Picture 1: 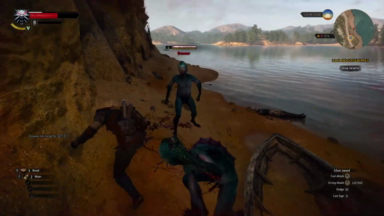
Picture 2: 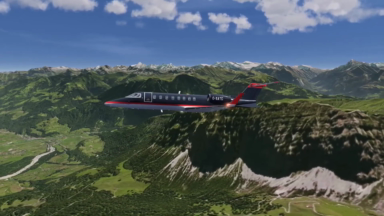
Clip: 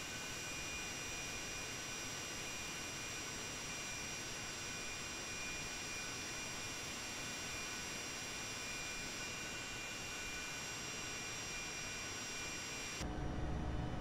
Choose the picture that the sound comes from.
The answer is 2